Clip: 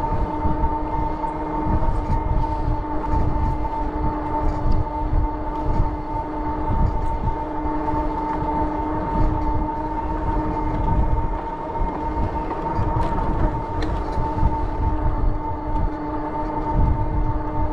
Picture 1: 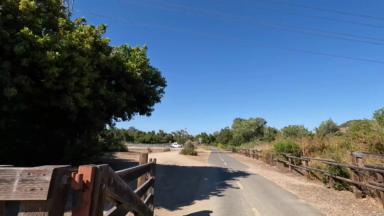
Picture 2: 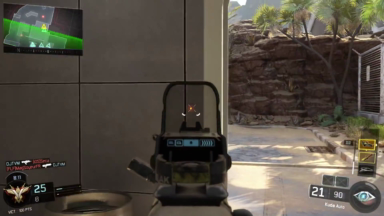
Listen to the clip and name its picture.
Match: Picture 1